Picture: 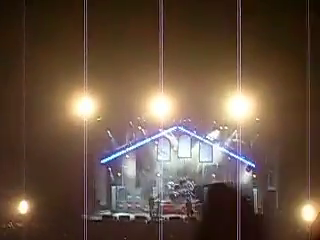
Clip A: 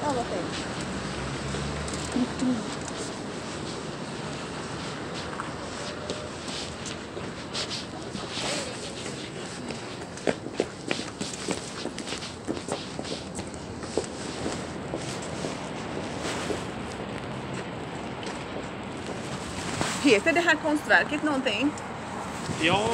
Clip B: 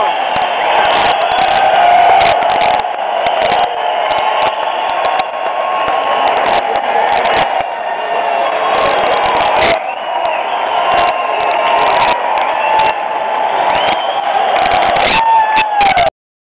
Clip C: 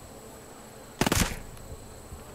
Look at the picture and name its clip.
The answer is B